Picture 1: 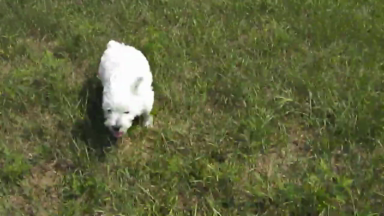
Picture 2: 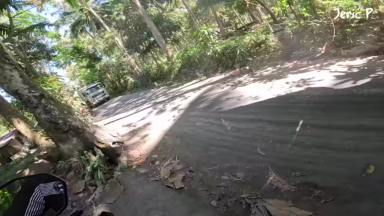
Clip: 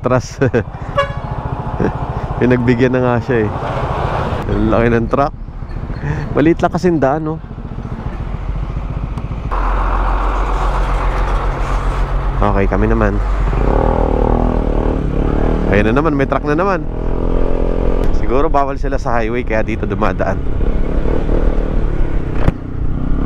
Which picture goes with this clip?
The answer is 2